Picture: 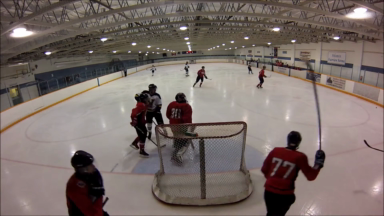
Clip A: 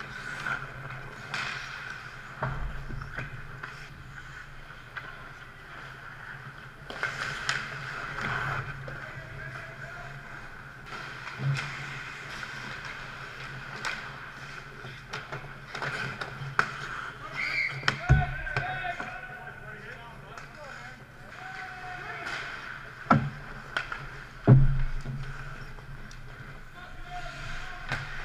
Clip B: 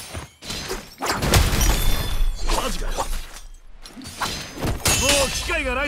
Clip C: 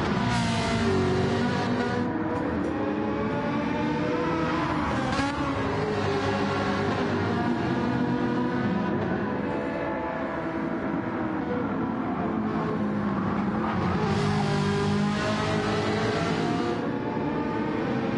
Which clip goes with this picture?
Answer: A